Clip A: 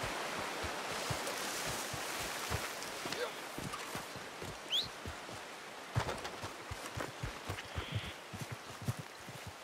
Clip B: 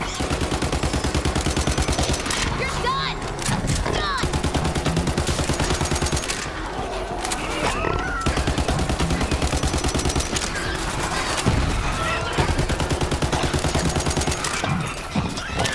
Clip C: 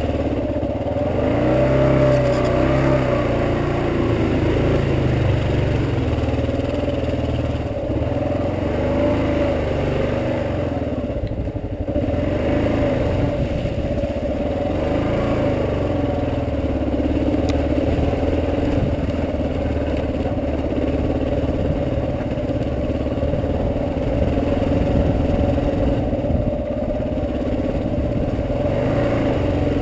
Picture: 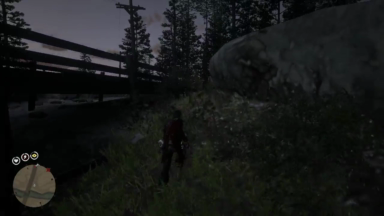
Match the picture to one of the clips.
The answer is A